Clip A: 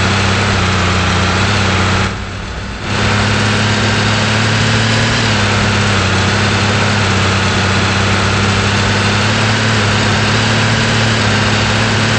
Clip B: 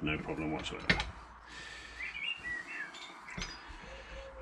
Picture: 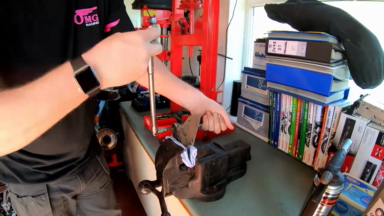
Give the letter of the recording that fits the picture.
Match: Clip B